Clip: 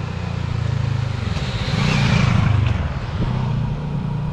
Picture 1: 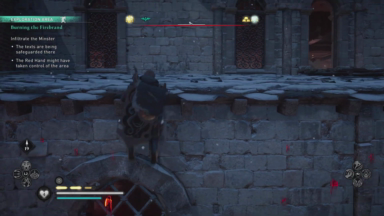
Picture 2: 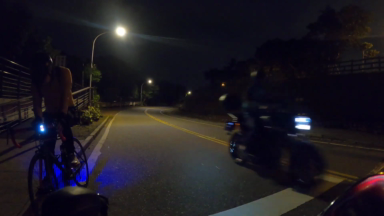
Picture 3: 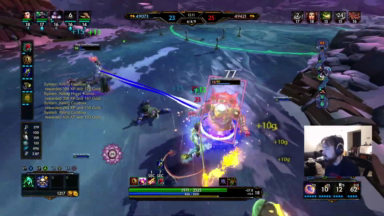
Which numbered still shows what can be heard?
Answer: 2